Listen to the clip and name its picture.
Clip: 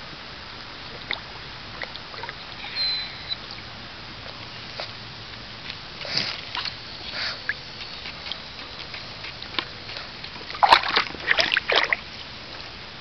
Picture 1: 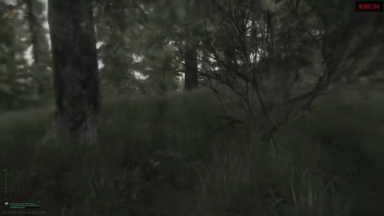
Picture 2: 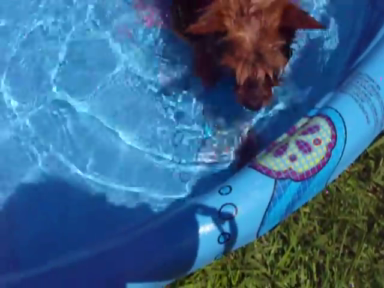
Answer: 2